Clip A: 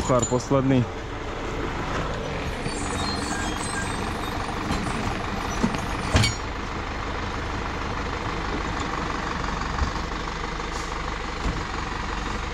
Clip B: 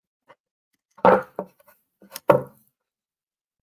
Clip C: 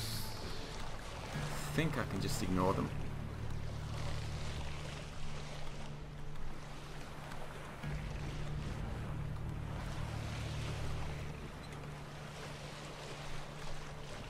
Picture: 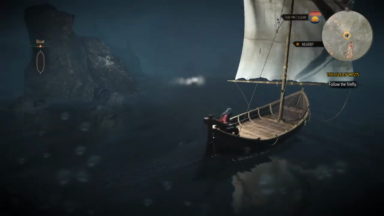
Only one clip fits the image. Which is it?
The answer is C